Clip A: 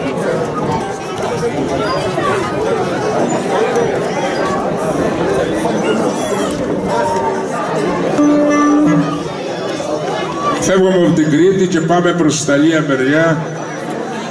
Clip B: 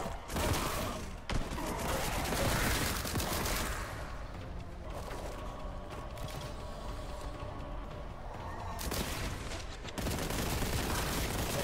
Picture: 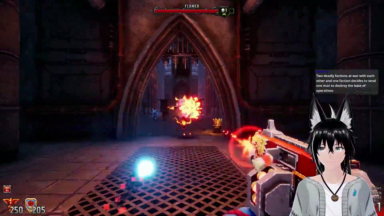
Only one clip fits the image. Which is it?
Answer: B